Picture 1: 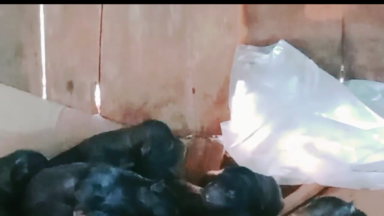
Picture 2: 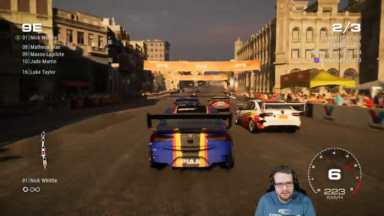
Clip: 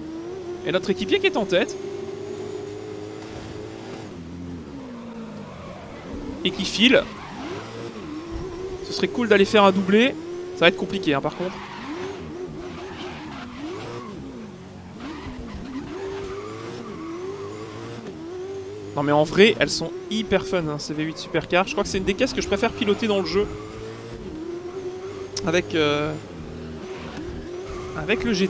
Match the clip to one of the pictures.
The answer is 2